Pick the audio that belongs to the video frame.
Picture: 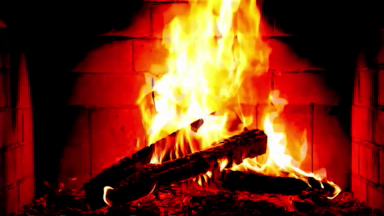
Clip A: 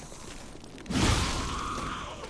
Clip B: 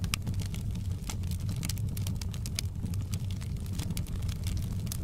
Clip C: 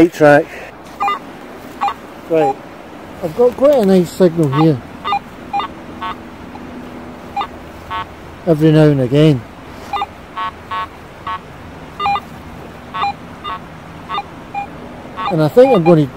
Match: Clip B